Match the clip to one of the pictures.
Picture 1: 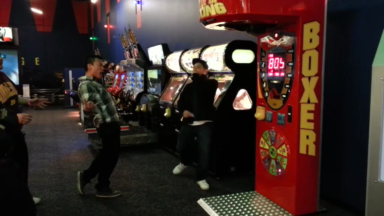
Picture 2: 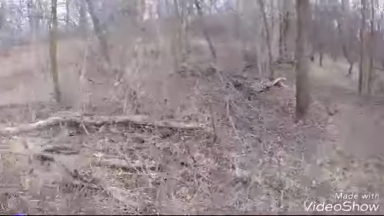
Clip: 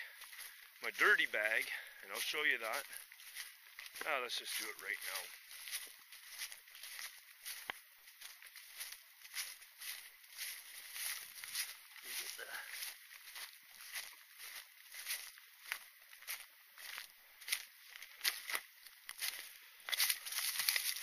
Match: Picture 2